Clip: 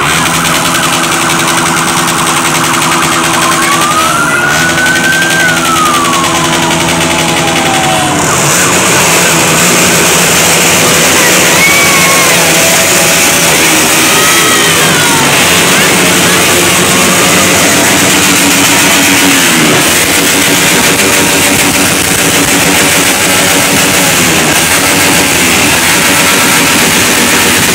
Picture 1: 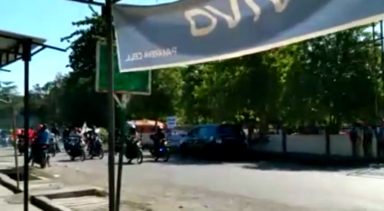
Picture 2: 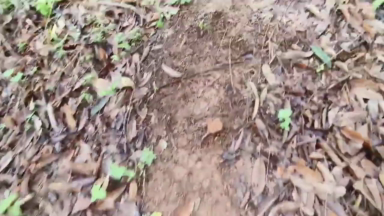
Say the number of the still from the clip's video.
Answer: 1